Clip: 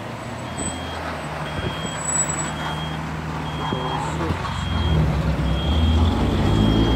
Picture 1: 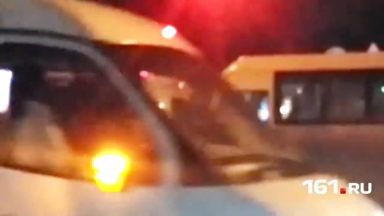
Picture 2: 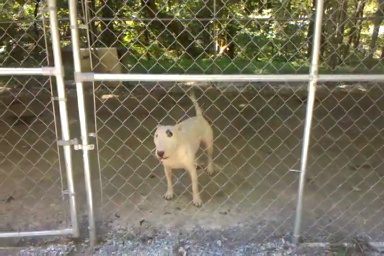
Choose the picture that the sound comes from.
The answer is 1